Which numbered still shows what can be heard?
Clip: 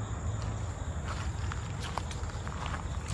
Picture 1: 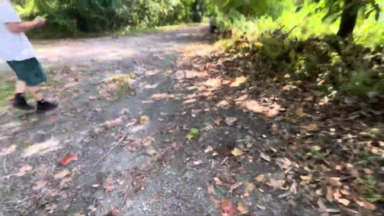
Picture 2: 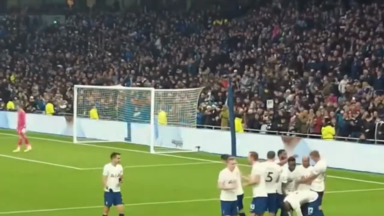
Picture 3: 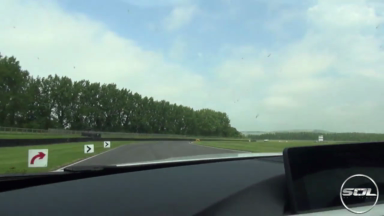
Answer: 1